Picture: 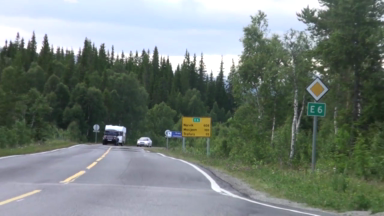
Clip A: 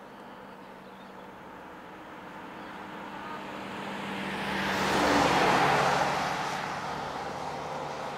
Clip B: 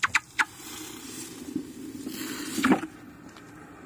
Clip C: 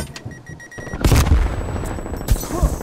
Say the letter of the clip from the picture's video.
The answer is A